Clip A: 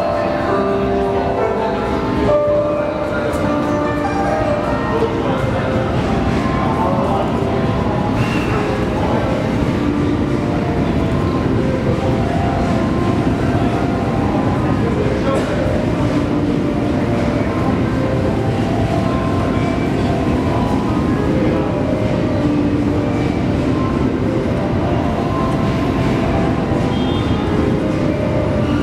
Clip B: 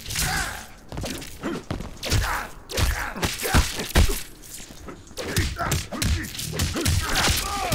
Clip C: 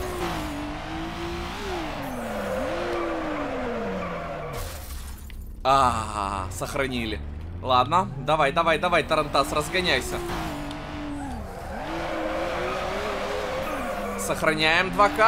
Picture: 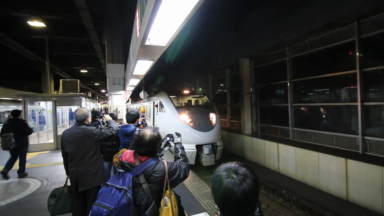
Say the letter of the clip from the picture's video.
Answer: A